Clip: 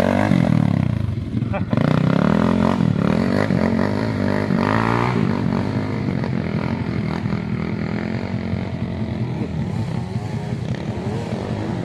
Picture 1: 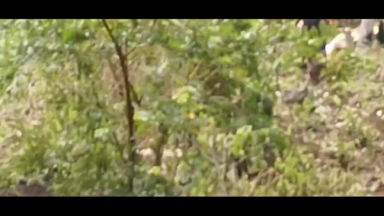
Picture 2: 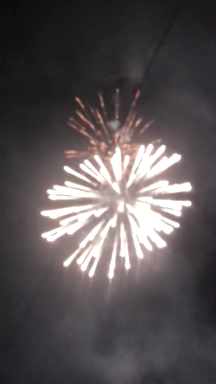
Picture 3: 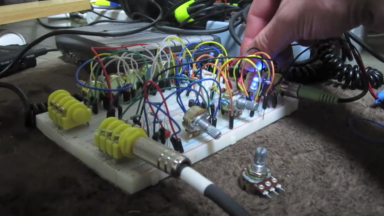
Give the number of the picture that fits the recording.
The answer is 1